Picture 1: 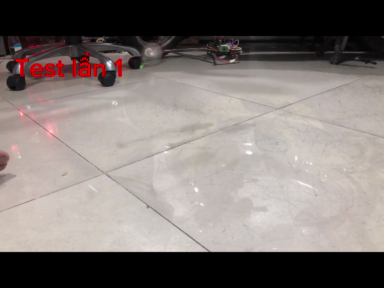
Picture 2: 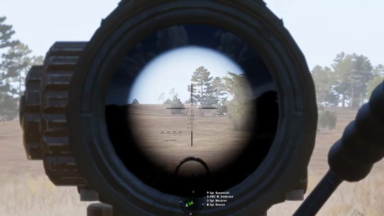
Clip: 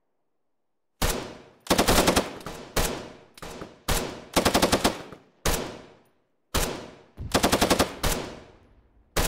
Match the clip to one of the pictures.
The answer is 2